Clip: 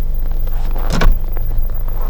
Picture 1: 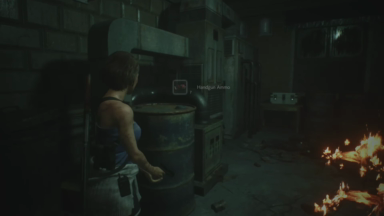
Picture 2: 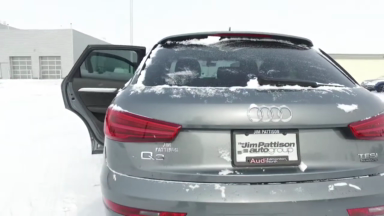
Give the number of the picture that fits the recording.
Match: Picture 2